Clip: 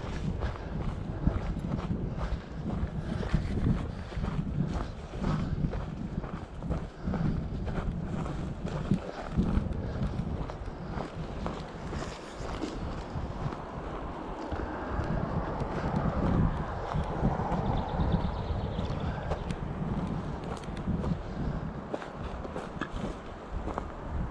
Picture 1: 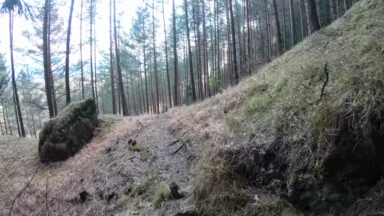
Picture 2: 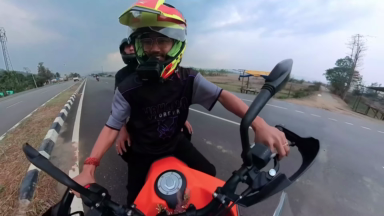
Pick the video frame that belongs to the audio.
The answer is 1